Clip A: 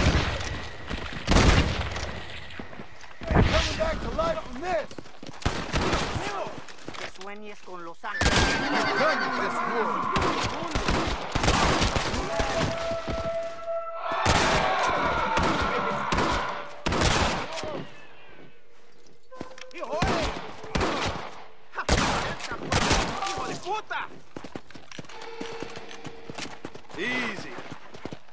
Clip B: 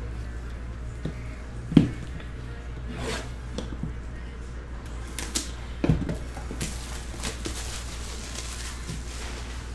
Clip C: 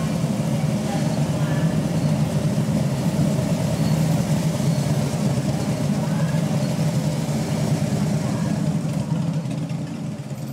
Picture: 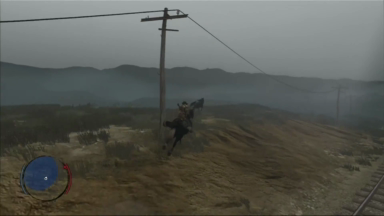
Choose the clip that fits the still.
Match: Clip A